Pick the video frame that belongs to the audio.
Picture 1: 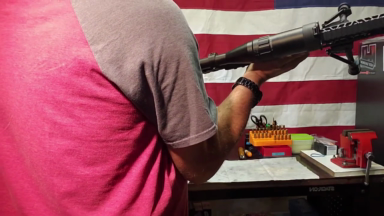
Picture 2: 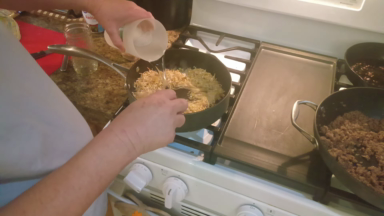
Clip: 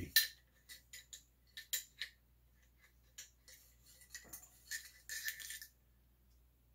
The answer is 1